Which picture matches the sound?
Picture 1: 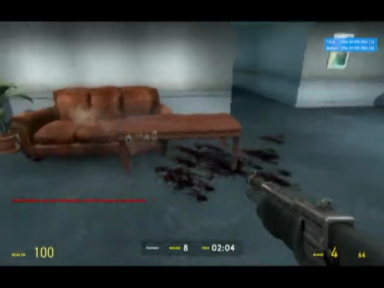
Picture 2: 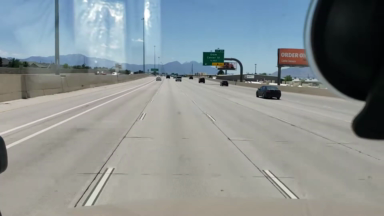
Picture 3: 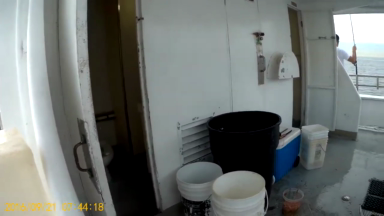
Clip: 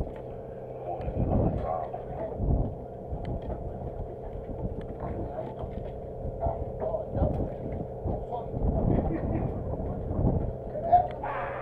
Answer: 3